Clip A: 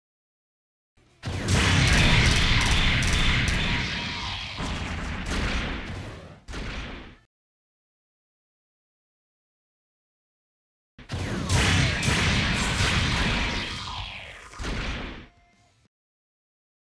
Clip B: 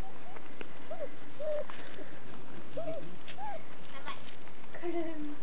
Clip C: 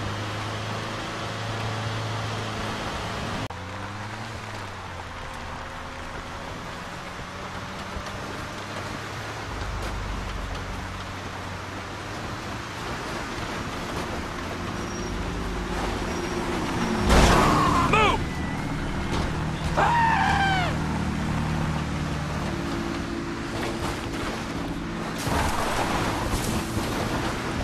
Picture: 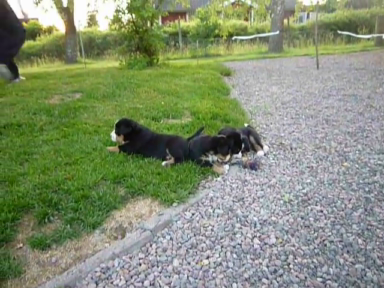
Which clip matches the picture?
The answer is B